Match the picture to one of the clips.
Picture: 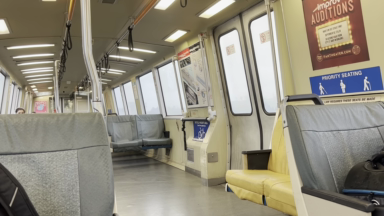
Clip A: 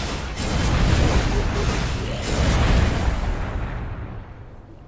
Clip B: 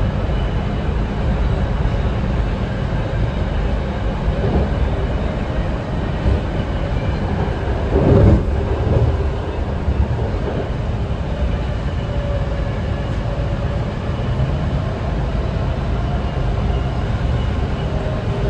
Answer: B